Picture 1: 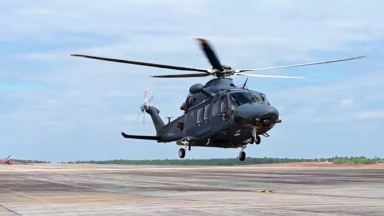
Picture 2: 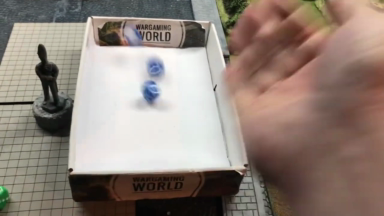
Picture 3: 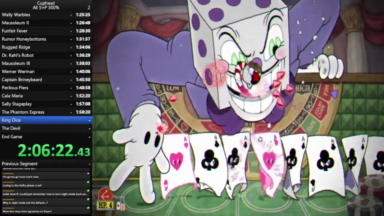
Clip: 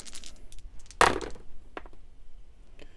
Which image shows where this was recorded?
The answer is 2